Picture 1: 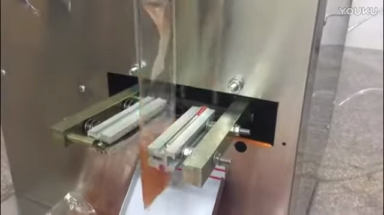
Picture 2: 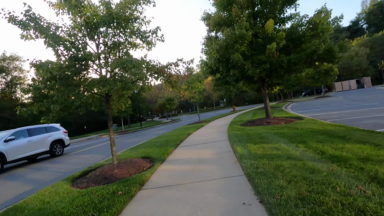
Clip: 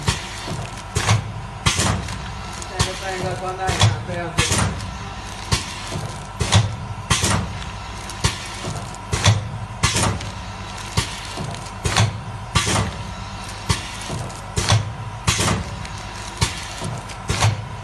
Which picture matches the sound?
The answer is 1